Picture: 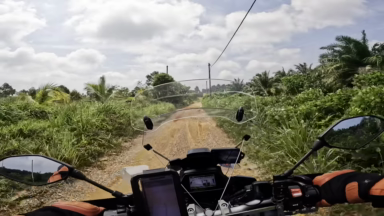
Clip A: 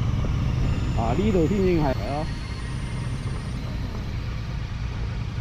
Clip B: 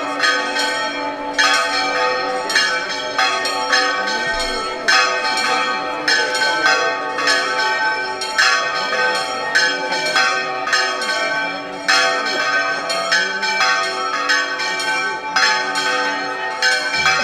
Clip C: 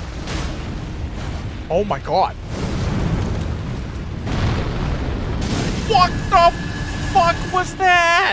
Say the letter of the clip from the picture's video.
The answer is A